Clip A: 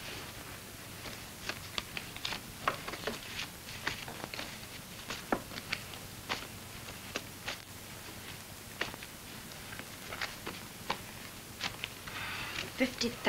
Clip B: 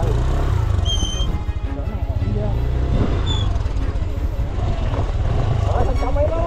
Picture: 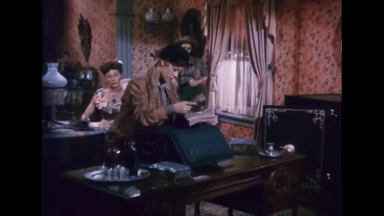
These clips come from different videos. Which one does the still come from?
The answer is A